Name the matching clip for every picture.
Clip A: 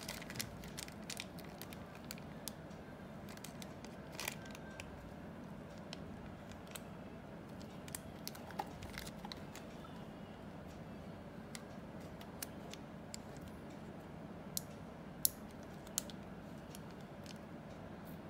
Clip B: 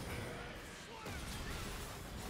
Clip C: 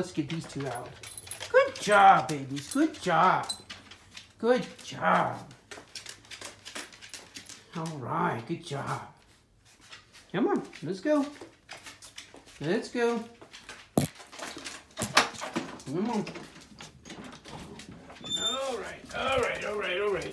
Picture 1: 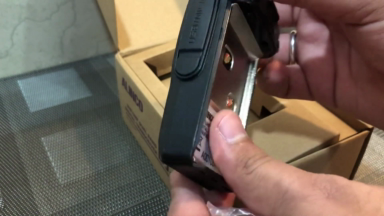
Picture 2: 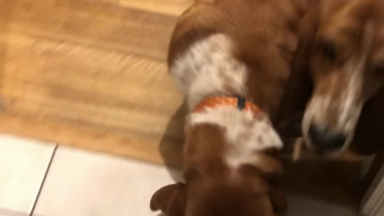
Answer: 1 A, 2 C